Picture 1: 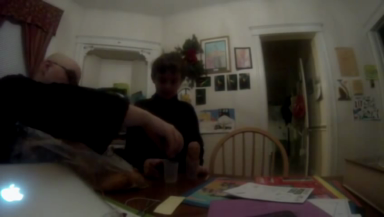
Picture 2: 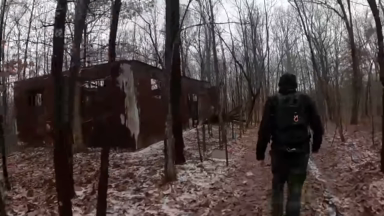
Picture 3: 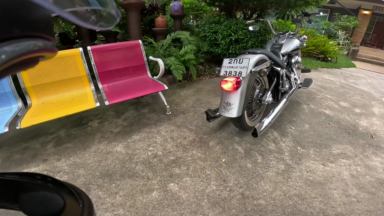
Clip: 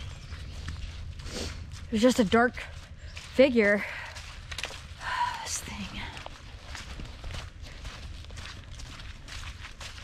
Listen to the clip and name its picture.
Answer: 2